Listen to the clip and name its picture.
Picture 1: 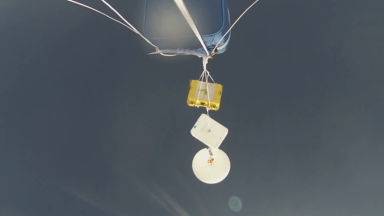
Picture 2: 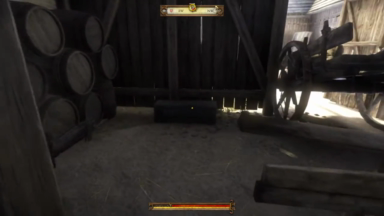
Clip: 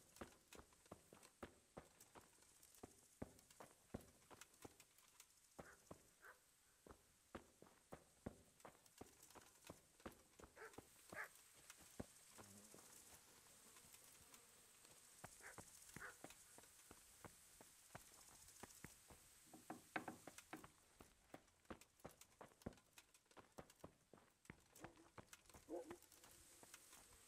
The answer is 2